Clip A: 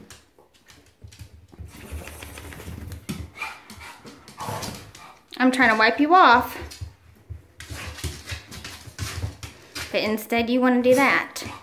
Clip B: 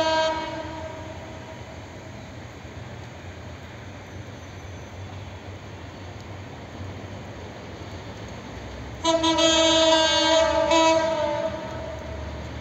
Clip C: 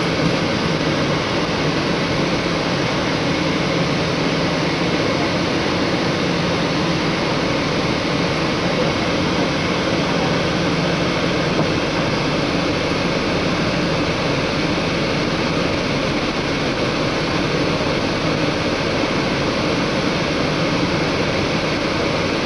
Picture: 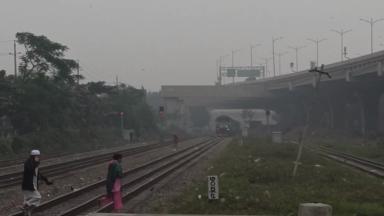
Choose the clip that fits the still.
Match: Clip B